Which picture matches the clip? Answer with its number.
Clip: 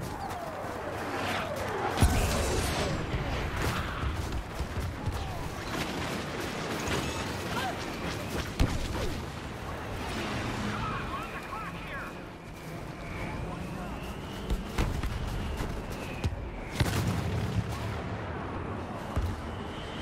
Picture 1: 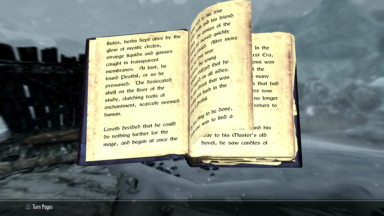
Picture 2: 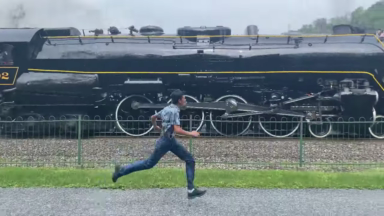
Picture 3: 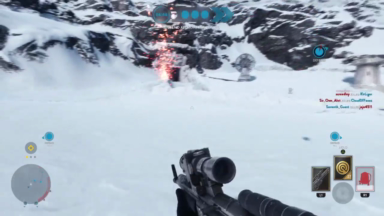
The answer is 3